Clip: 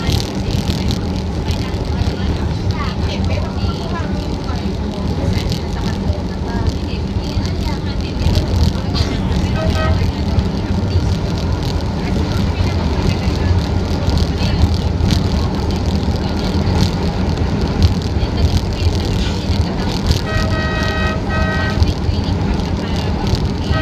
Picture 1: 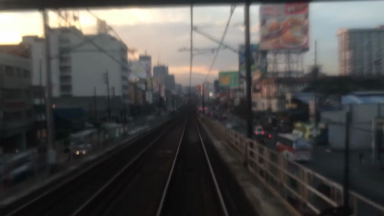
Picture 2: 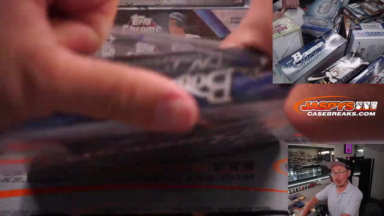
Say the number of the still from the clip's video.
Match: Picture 1